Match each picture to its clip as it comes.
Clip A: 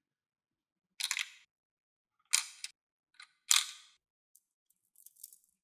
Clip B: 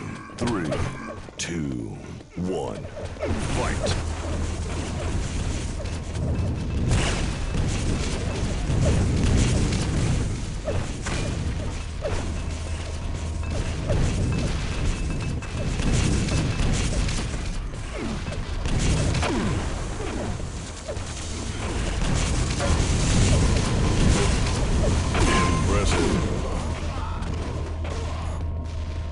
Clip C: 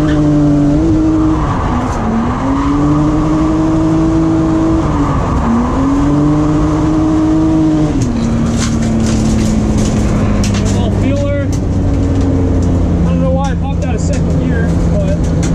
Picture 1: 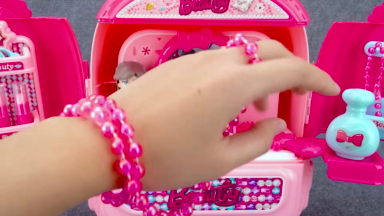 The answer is A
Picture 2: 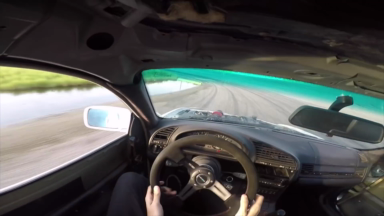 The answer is C